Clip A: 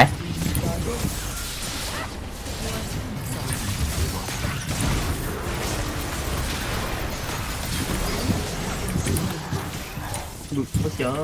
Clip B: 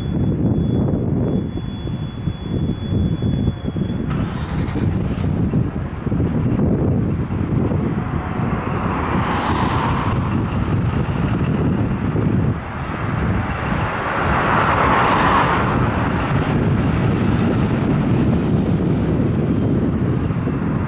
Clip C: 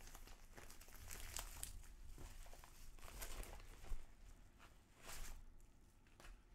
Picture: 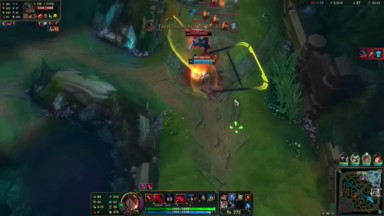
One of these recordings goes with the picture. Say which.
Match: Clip A